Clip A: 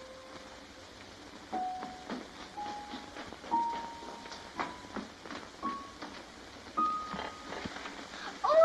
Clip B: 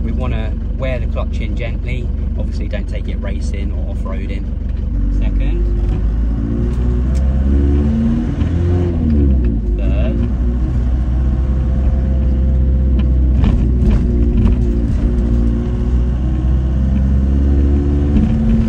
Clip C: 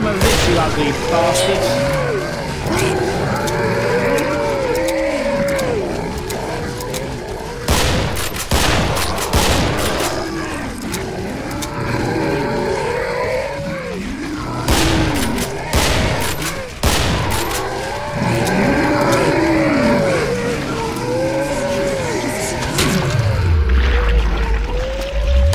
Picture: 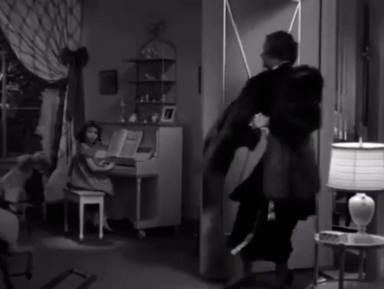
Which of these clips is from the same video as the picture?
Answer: A